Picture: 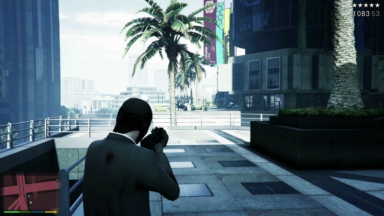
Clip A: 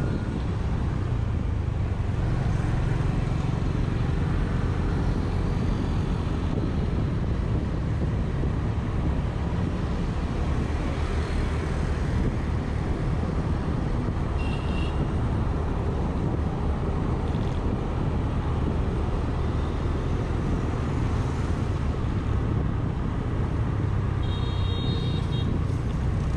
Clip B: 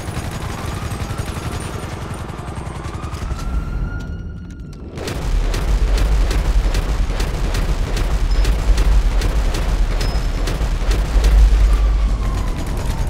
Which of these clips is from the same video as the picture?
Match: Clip B